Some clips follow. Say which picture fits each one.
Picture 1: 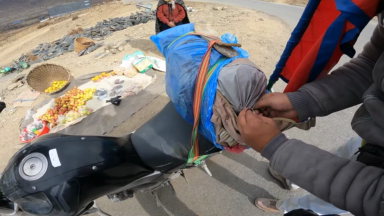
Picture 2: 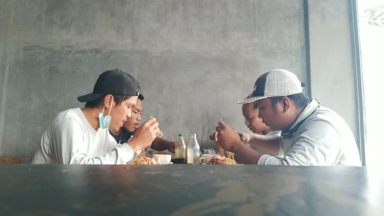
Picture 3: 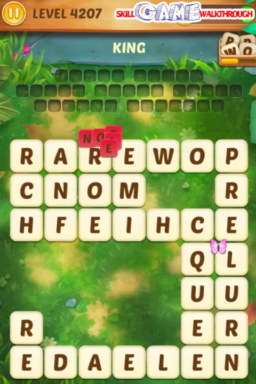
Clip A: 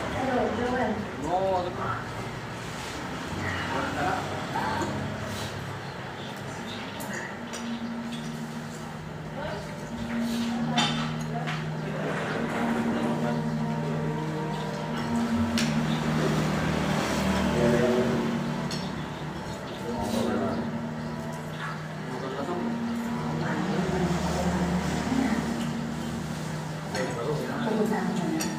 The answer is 2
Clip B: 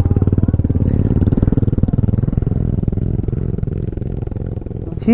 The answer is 1